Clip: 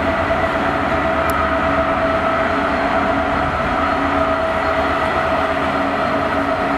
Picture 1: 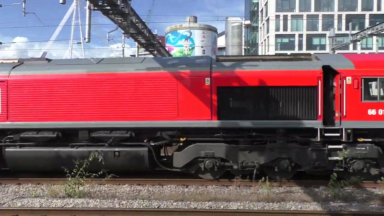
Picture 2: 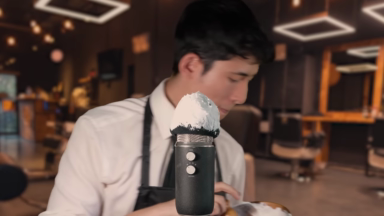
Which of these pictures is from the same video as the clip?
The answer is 1